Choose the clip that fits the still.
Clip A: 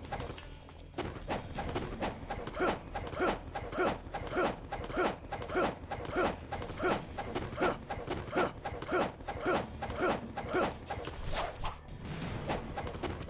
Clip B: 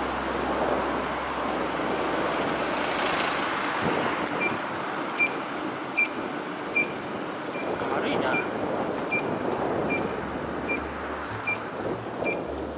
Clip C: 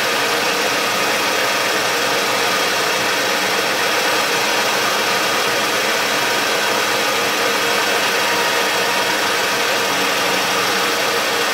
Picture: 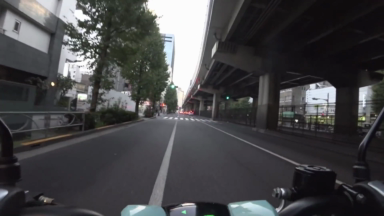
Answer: B